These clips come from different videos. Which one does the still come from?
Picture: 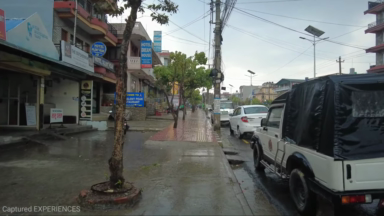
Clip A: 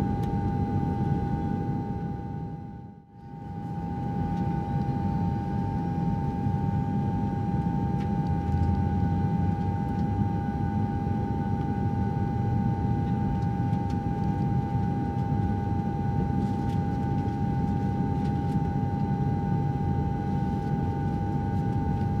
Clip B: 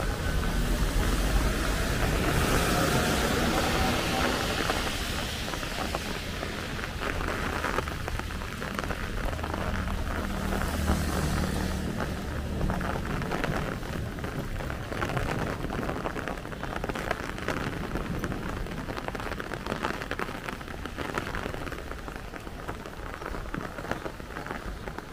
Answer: B